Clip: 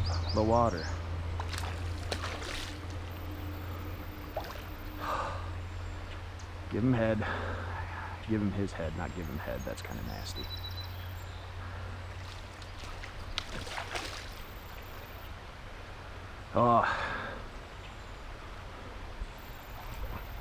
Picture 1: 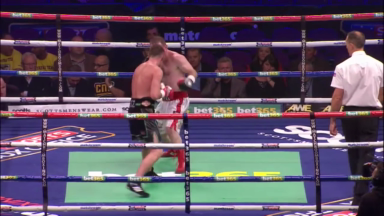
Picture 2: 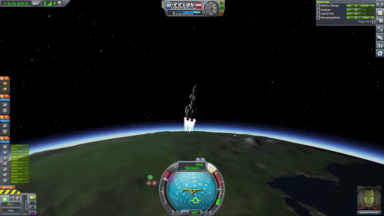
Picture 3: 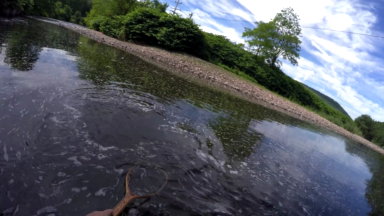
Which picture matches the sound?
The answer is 3